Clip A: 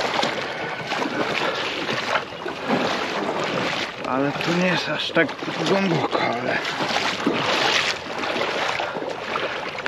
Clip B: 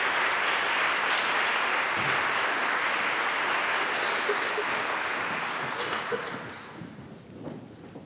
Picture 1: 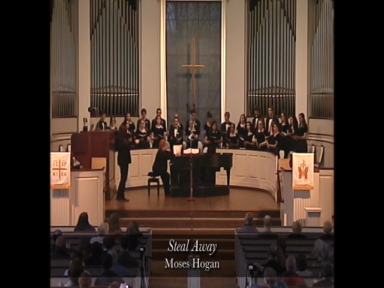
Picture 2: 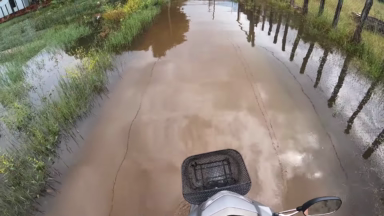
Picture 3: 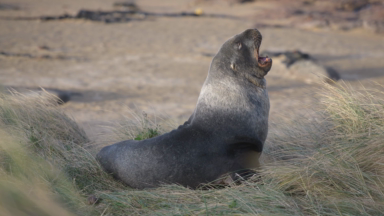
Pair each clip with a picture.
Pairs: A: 2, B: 1